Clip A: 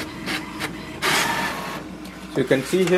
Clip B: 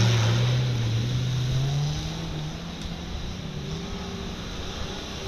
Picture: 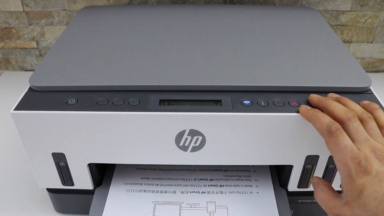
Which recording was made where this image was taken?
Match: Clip A